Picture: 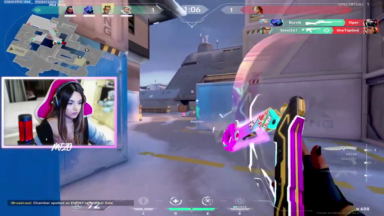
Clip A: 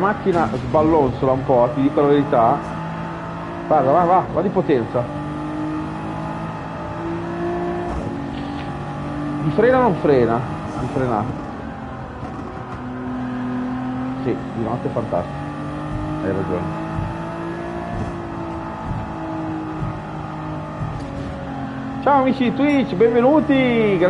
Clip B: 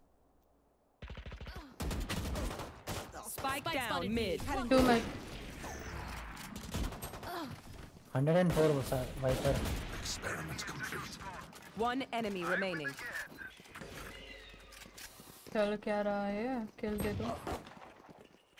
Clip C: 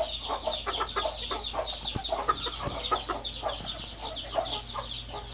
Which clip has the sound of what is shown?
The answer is B